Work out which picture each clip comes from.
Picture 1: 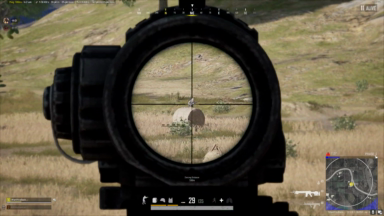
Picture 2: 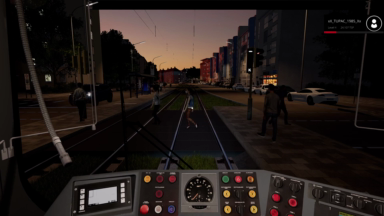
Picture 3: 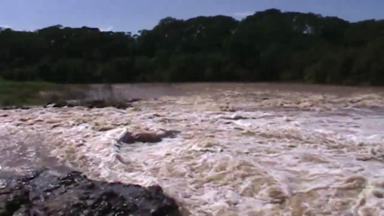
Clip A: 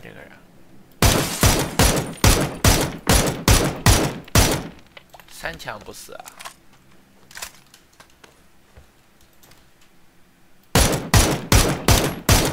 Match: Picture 1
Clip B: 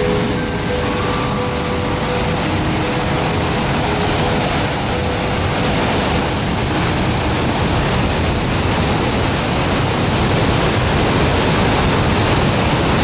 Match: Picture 3